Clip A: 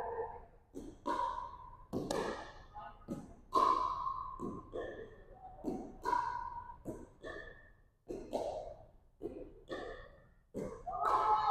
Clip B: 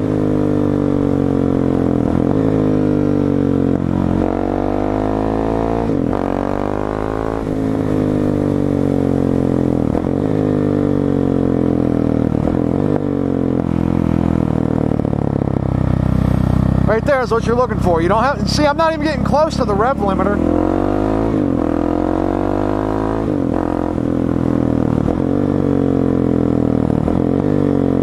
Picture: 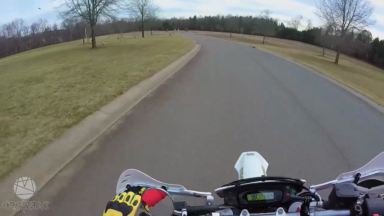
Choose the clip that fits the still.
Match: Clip B